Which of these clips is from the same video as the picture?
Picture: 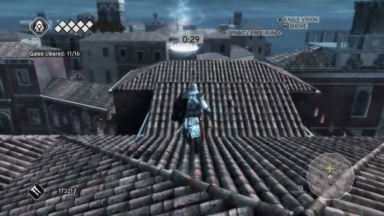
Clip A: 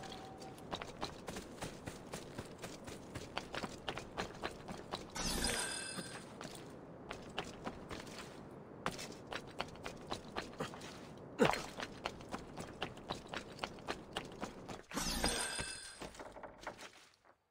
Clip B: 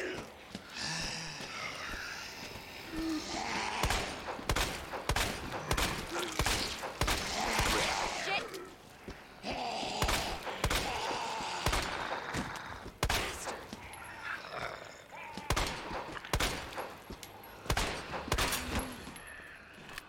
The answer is A